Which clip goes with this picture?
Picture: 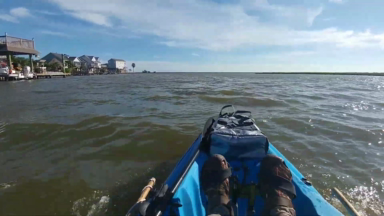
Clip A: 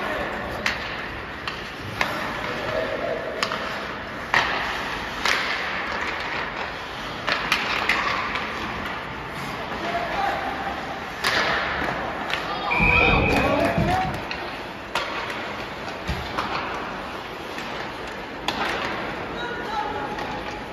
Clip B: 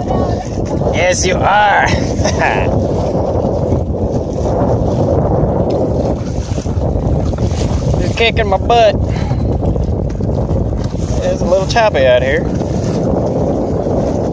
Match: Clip B